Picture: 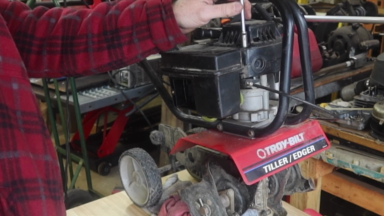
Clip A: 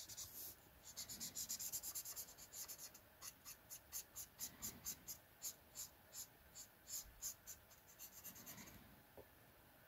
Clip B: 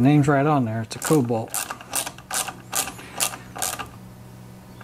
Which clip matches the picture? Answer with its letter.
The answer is B